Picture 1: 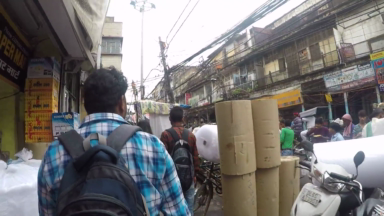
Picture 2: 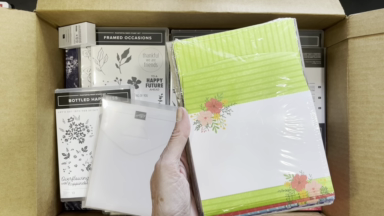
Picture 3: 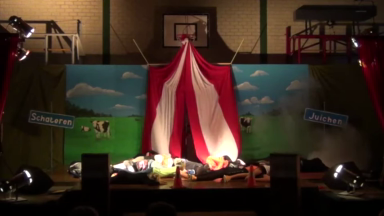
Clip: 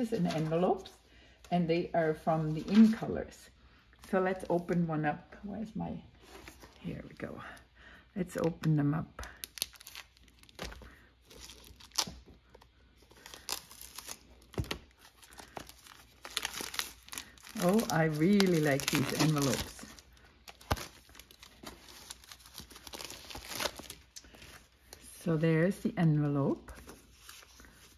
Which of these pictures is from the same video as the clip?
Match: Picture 2